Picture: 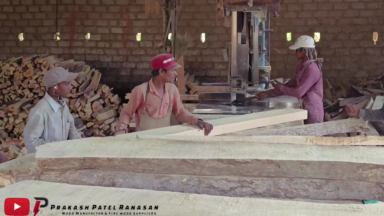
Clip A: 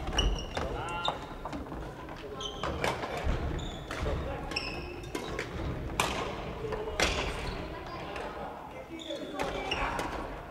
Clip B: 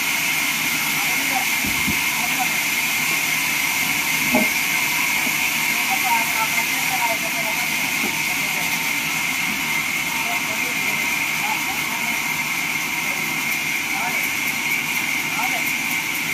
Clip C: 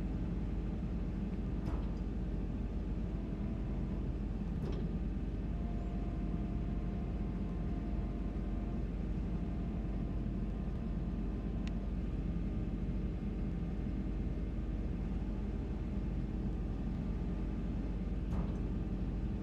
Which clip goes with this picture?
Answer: B